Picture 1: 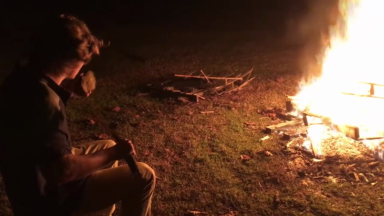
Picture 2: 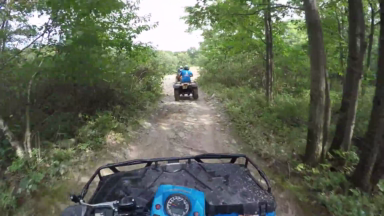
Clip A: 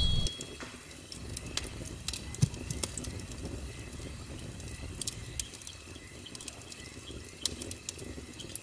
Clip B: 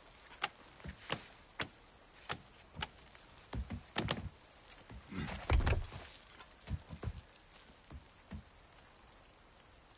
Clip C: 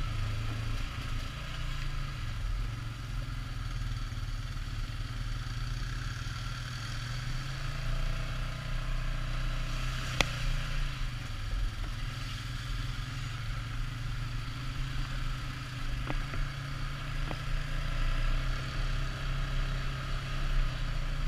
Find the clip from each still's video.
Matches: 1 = A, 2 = C